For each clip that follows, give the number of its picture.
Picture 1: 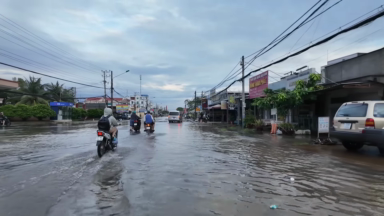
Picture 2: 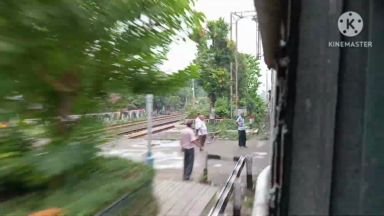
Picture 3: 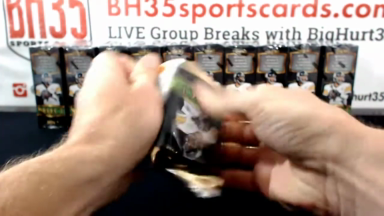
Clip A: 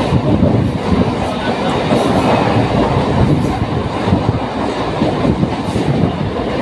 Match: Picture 2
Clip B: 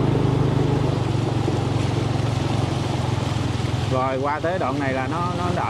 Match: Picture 1